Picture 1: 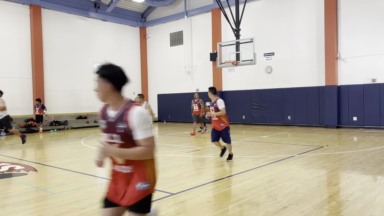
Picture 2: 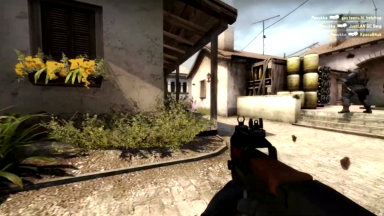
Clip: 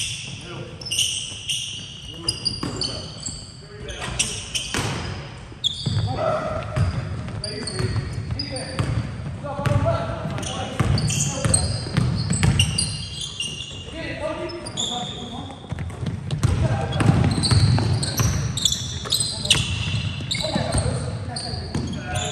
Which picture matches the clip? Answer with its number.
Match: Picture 1